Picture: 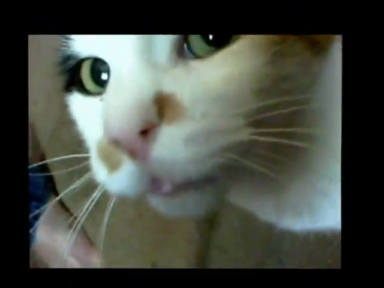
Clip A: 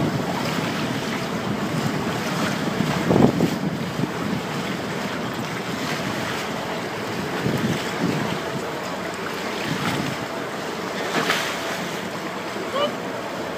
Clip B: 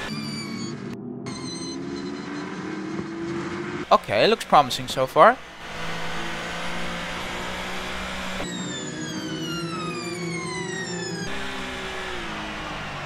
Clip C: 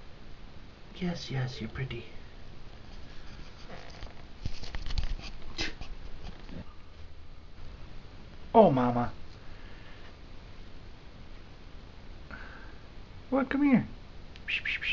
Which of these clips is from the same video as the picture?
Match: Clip C